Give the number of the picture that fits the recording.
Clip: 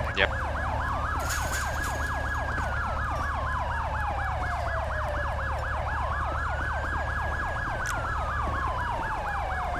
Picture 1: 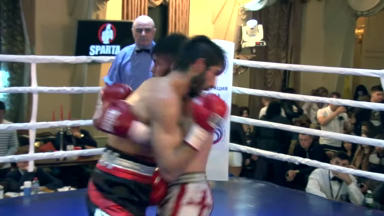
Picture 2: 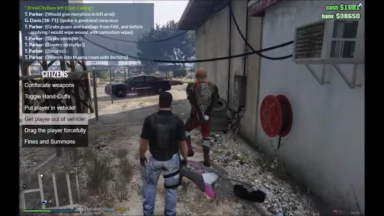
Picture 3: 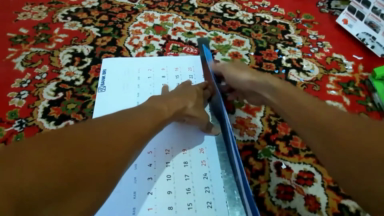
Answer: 2